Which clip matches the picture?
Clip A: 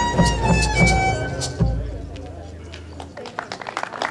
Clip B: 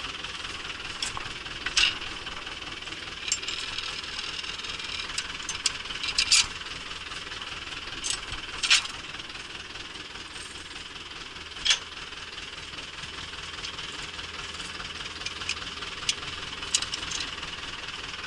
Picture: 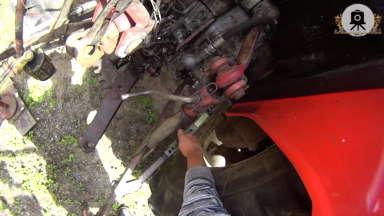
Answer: B